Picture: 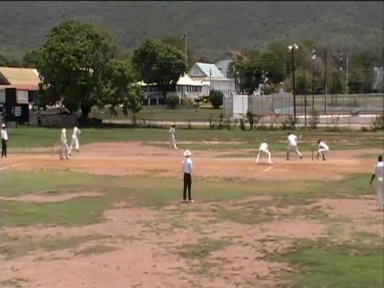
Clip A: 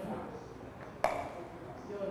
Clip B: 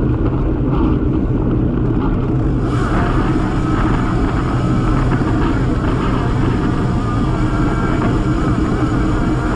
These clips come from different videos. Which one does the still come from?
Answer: A